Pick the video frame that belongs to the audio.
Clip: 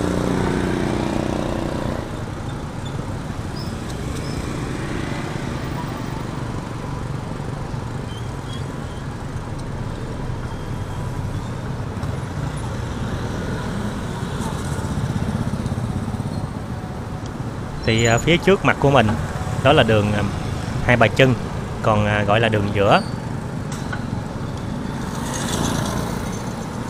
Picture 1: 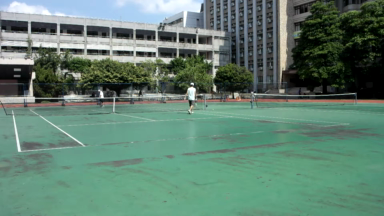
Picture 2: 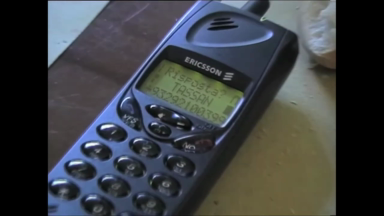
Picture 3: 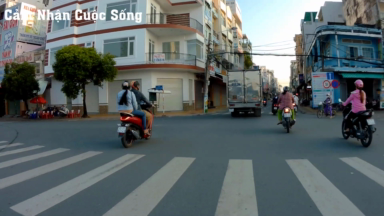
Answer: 3